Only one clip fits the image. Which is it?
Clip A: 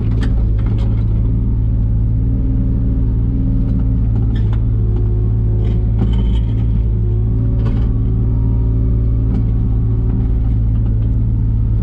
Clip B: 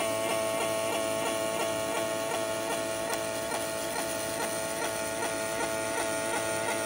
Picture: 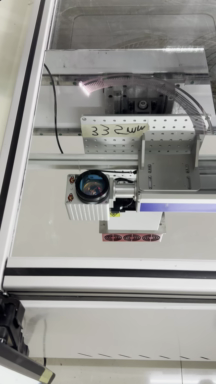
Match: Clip B